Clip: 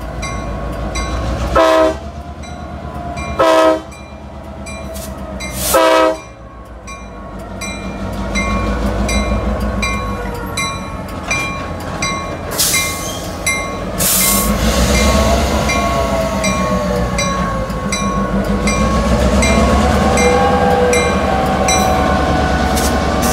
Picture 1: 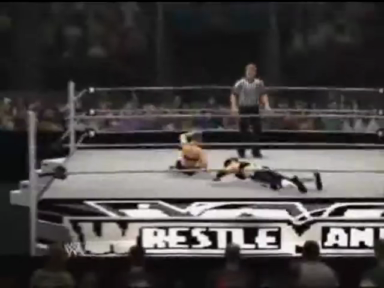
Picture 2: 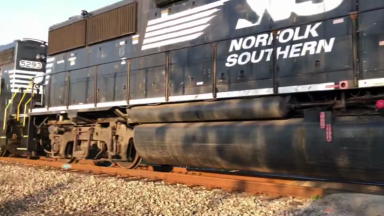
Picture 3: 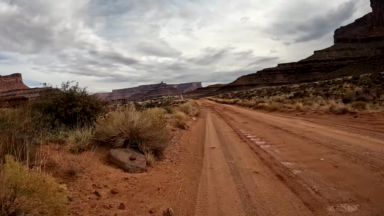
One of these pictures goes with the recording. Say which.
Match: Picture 2